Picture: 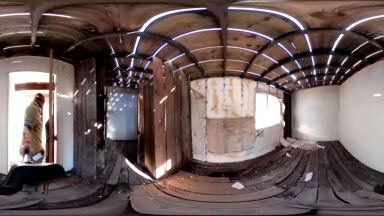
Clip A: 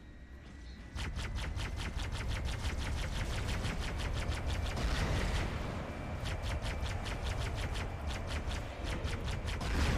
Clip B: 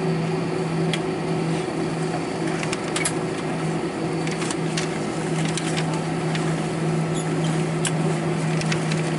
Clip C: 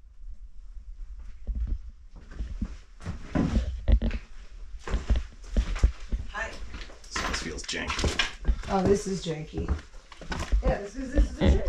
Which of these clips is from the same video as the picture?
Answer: C